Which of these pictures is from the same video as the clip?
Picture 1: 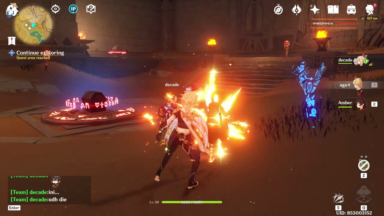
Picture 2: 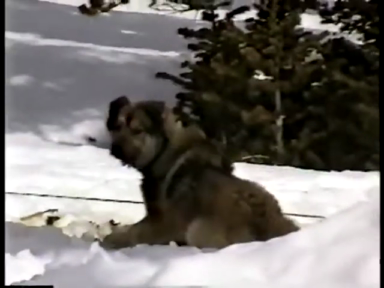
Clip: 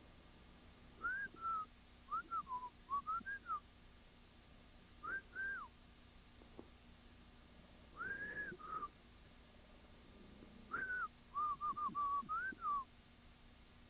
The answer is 2